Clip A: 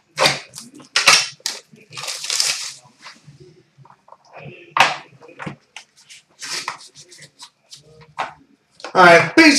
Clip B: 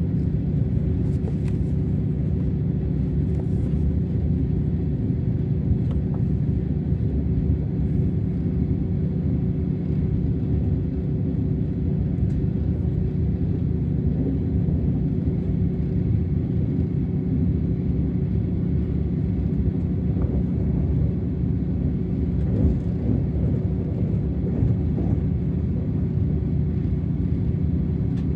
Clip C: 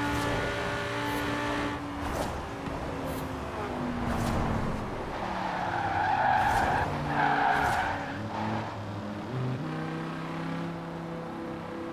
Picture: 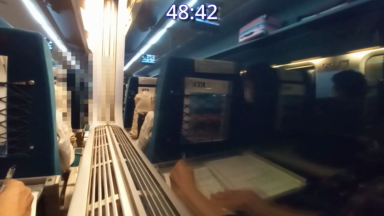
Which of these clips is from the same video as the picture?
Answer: B